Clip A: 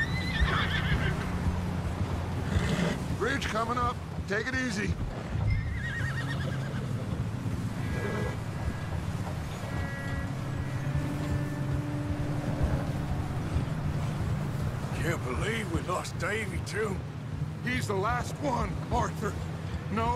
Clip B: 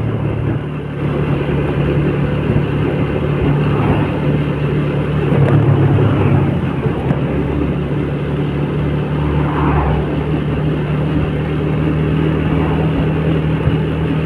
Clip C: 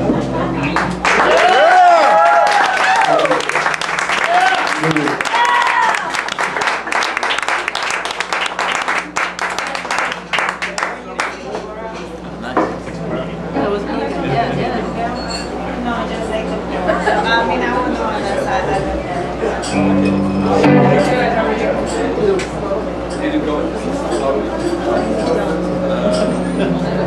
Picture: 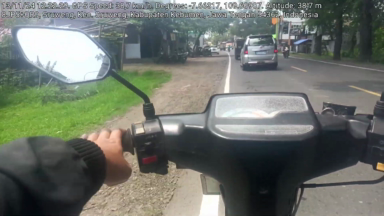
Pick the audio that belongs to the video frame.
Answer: B